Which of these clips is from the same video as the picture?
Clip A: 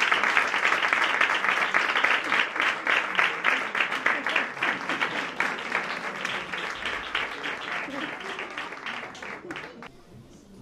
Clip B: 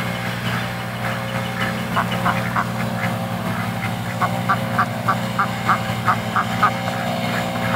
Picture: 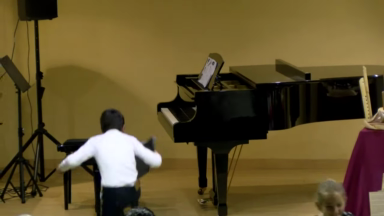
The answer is A